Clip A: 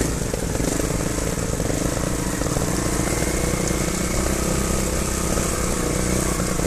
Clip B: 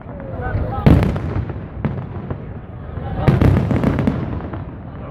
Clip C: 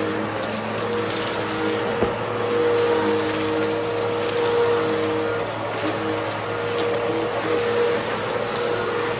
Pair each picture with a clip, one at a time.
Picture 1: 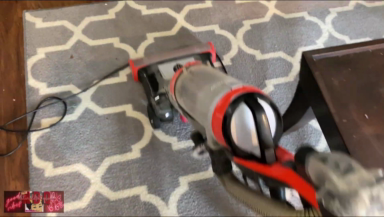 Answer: C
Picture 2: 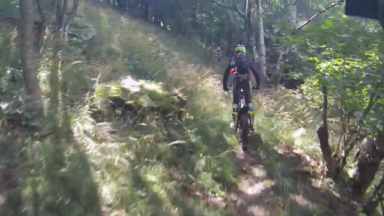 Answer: A